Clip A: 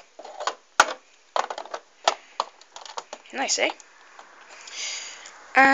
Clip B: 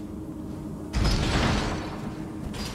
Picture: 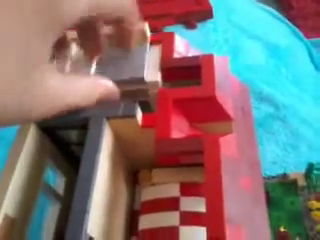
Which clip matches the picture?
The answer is A